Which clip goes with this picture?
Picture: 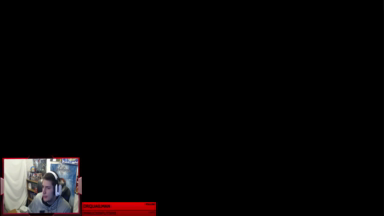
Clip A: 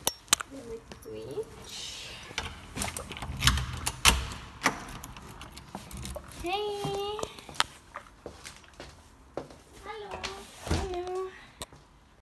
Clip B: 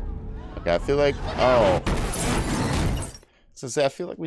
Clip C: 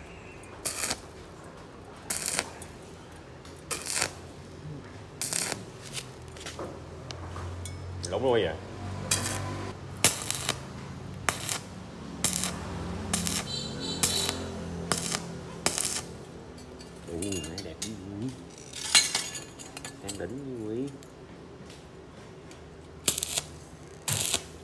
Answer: B